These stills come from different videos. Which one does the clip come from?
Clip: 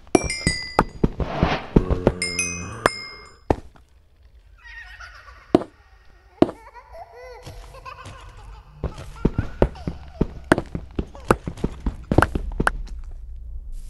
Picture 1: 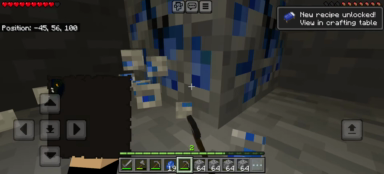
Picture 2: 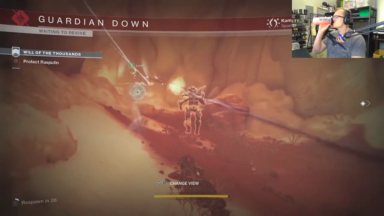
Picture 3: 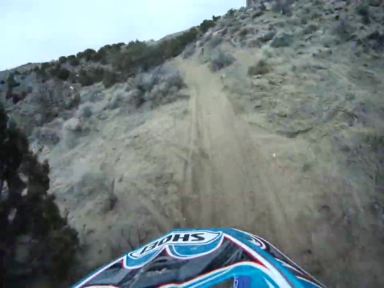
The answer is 1